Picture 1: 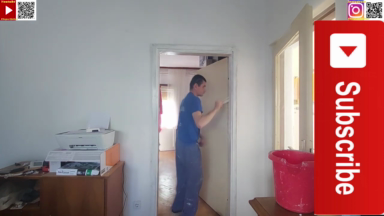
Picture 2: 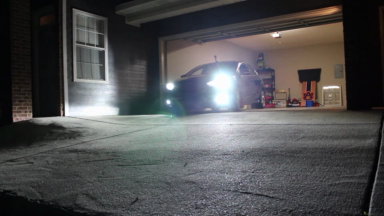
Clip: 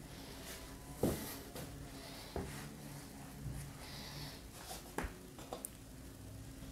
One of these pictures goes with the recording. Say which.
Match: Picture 1